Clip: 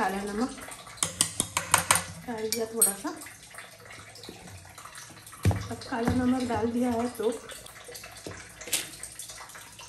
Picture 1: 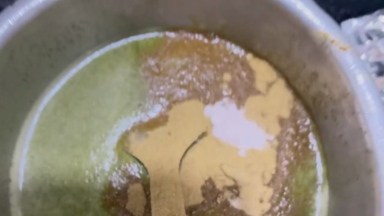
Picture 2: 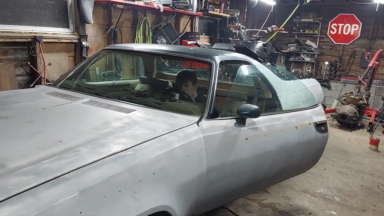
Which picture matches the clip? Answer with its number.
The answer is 1